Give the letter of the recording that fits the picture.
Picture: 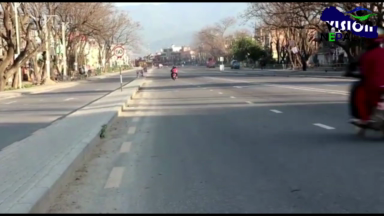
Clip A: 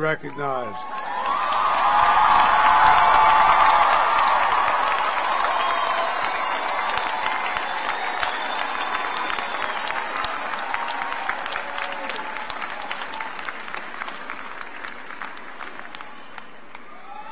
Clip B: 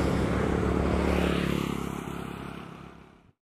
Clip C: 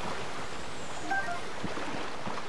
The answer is B